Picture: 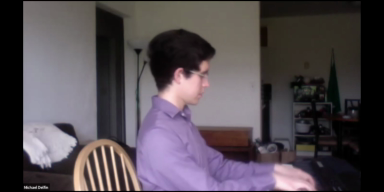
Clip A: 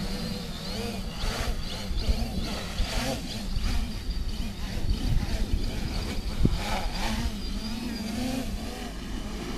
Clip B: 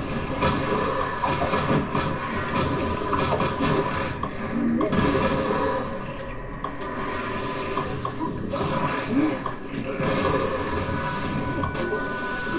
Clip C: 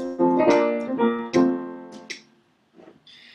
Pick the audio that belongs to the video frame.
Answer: C